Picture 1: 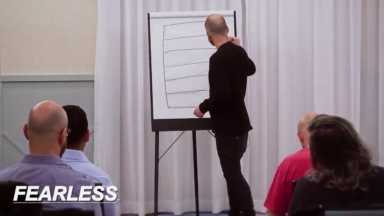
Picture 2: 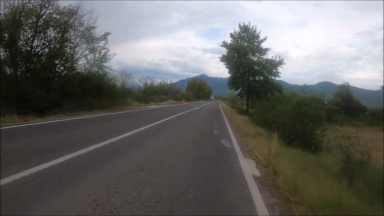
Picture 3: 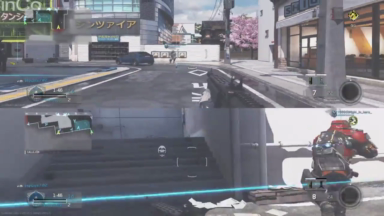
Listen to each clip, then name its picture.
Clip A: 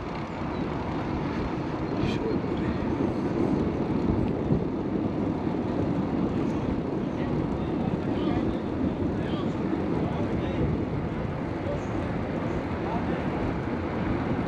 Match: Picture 2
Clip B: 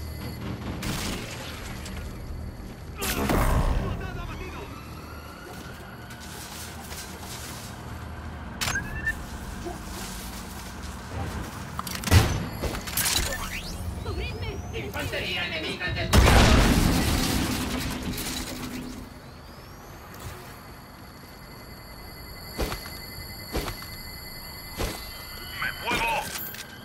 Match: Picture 3